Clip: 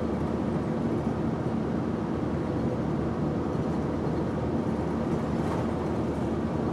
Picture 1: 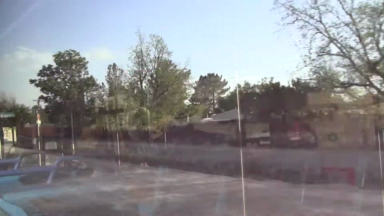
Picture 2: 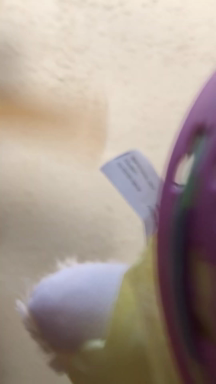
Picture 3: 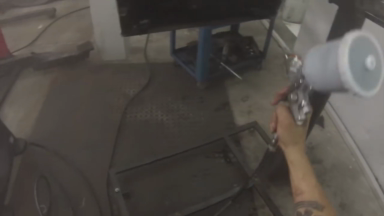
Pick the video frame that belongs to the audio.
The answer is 1